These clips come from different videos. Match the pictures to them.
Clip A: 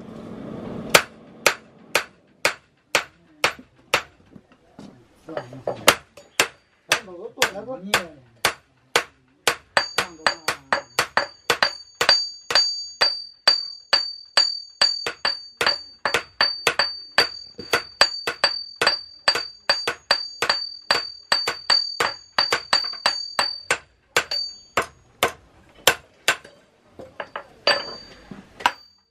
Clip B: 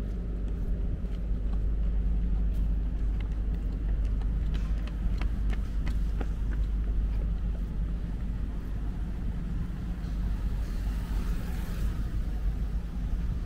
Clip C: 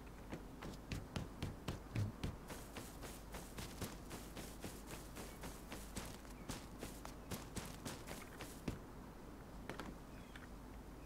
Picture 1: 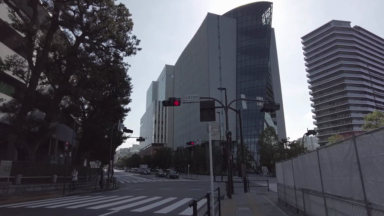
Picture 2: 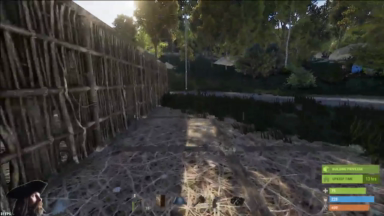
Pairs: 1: B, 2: C